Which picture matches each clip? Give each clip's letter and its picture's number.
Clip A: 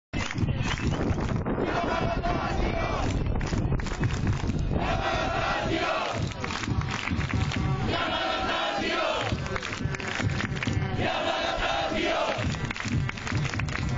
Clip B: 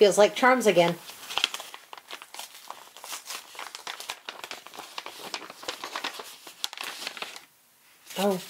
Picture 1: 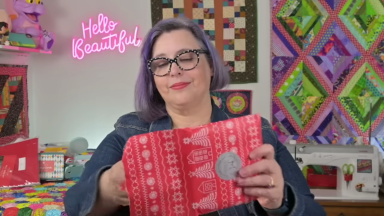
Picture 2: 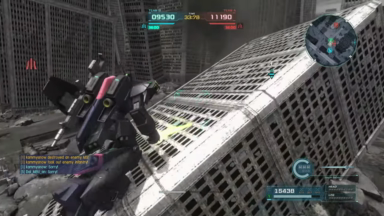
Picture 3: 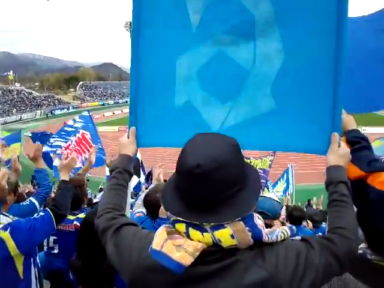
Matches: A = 3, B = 1